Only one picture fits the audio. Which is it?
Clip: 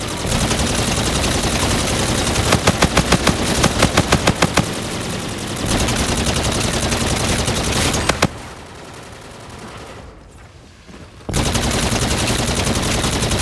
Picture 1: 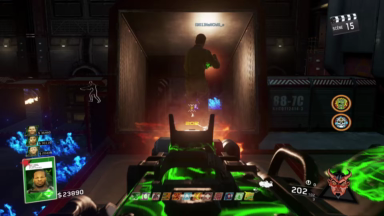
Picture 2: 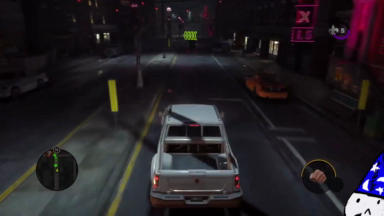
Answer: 1